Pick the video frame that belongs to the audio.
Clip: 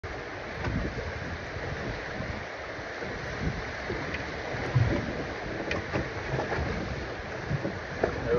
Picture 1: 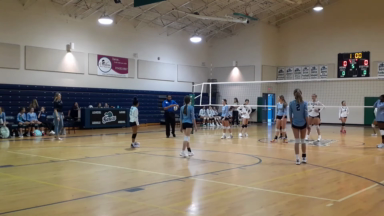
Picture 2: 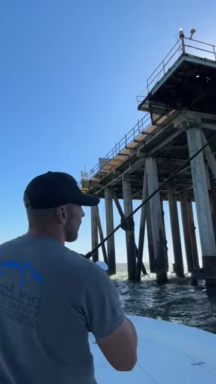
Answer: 2